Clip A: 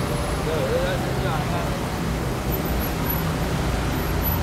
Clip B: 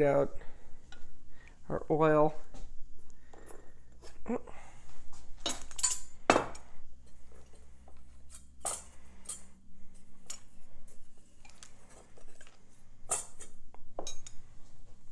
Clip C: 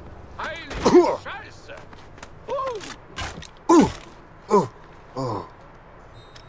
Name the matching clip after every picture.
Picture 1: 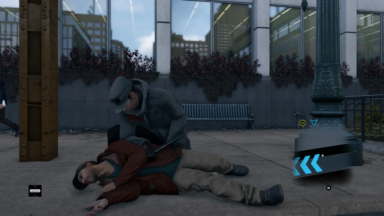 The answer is C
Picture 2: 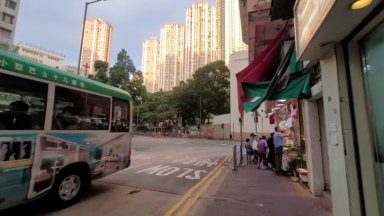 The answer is A